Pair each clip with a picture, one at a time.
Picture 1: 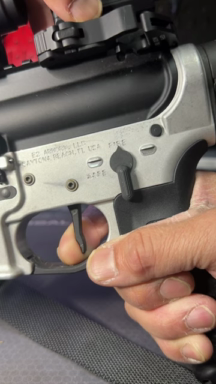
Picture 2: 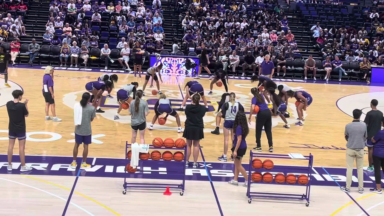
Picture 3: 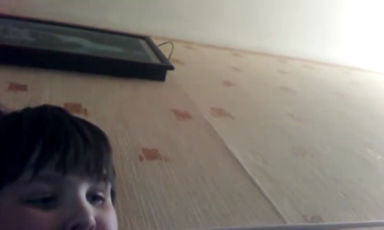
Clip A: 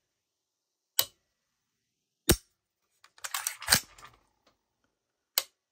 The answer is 1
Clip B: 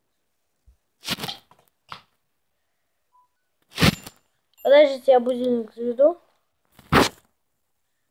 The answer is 3